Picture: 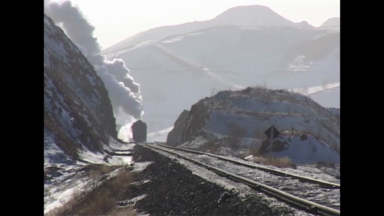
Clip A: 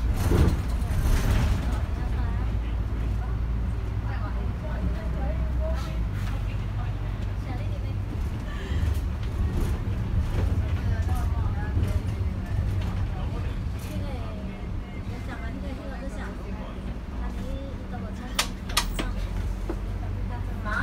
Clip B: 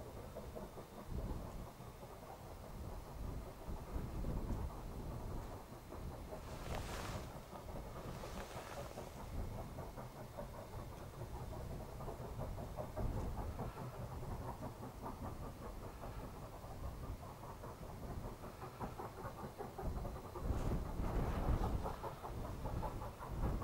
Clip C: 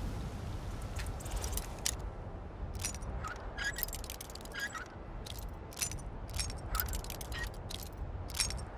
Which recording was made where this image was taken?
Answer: B